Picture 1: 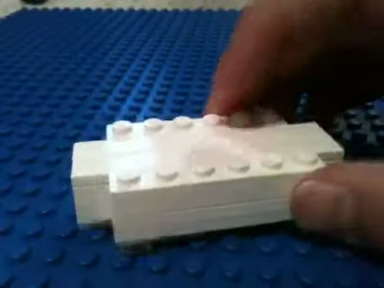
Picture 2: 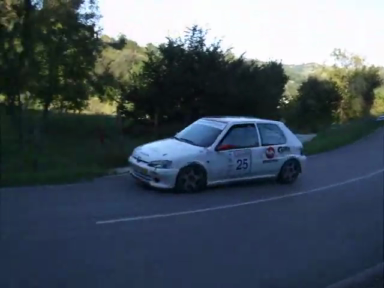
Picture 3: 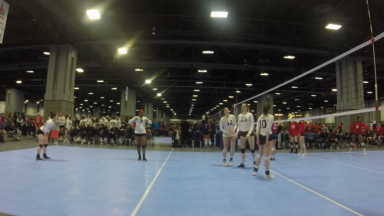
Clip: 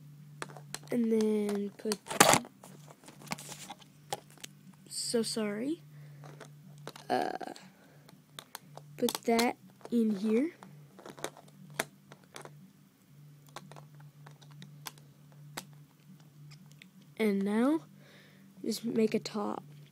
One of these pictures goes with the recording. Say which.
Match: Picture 1